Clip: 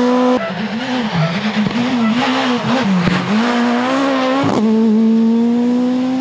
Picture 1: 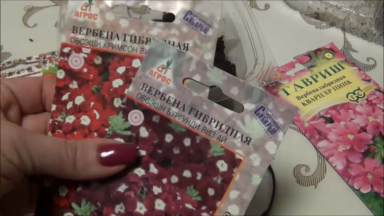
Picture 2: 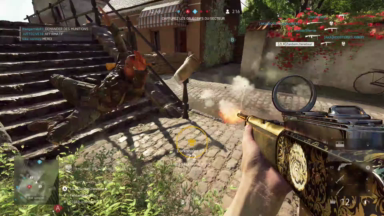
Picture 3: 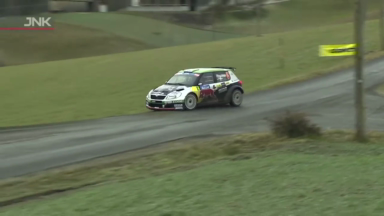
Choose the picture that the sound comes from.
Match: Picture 3